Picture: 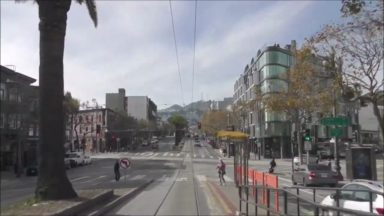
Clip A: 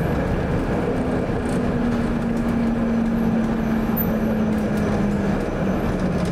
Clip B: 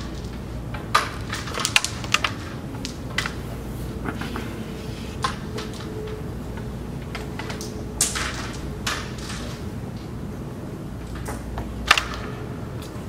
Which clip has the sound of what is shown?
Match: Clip A